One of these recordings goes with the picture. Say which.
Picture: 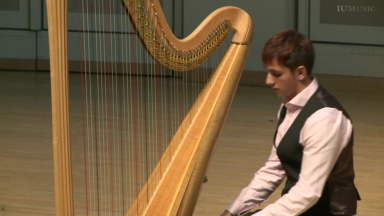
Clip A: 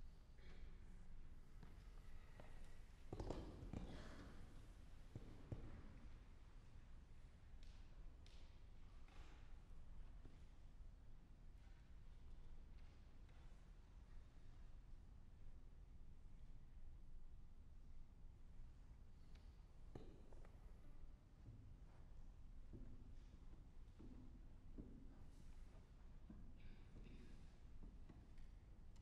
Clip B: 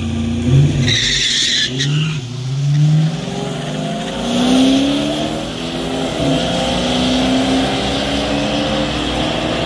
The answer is A